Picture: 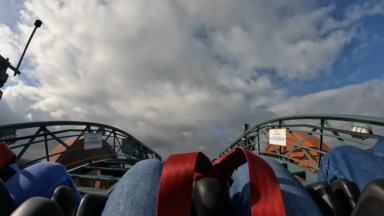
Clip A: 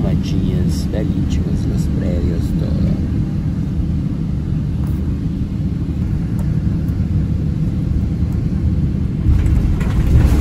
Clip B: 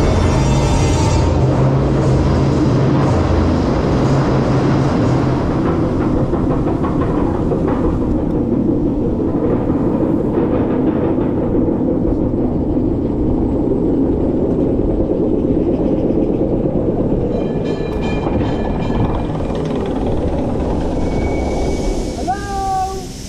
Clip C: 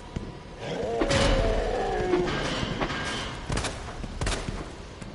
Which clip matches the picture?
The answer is B